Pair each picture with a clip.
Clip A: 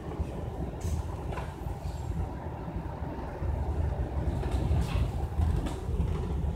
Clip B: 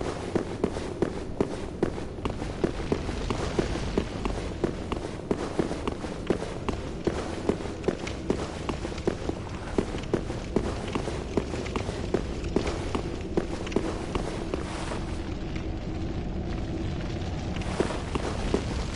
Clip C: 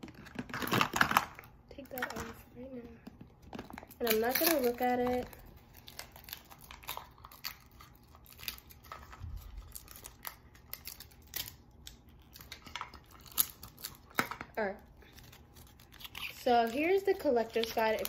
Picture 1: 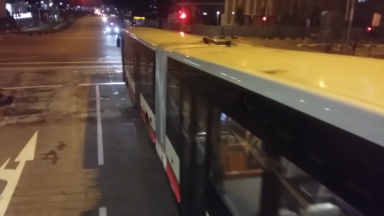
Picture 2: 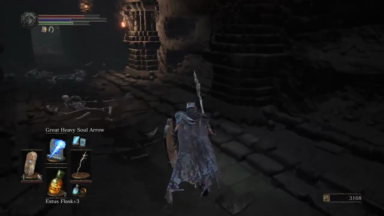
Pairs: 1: A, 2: B